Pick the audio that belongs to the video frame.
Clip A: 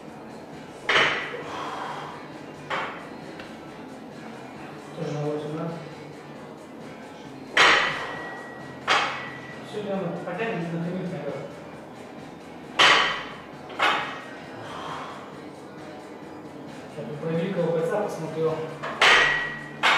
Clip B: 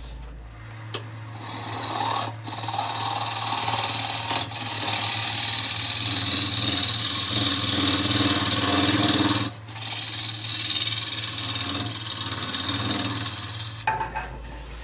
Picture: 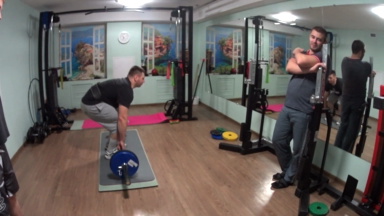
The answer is A